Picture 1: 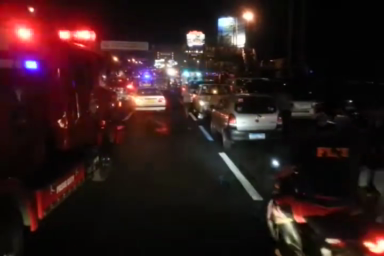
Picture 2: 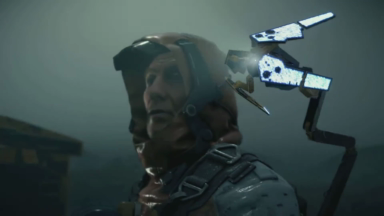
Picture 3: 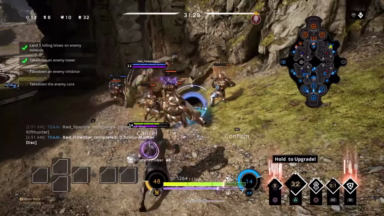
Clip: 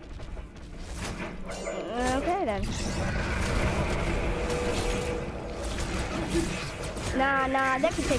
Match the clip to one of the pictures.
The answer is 3